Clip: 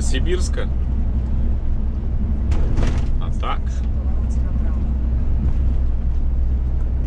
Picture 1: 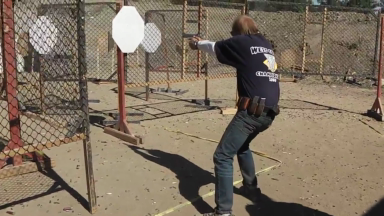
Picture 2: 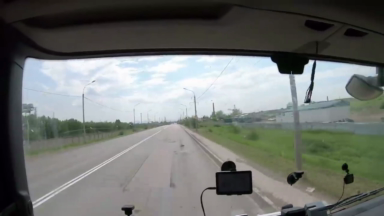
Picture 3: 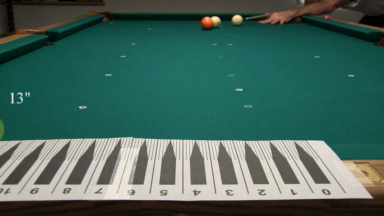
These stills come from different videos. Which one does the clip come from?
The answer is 2